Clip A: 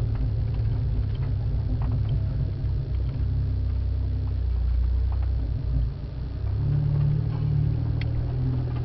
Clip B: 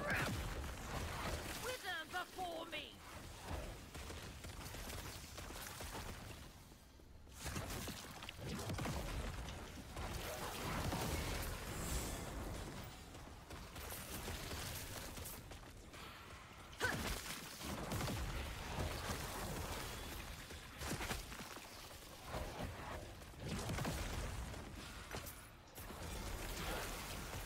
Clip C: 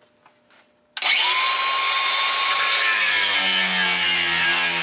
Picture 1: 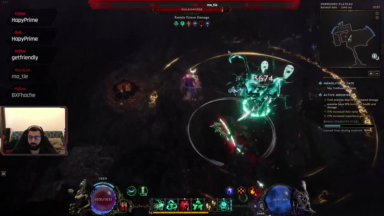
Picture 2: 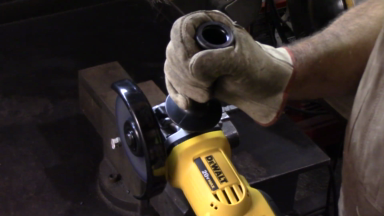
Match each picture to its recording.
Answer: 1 B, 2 C